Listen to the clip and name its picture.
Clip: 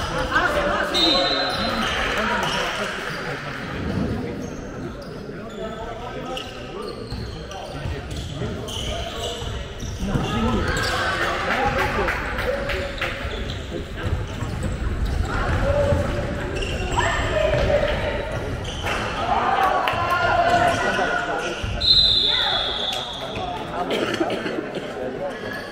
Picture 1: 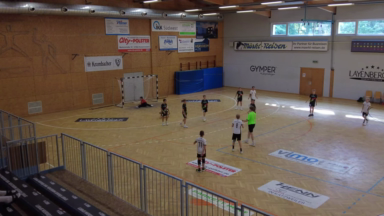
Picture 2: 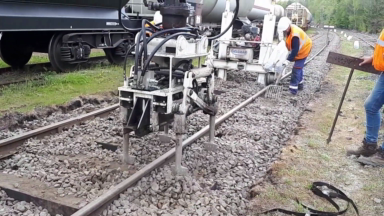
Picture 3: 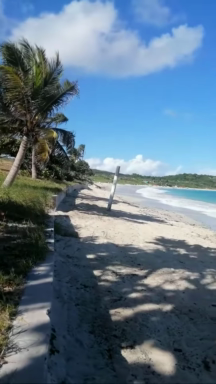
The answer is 1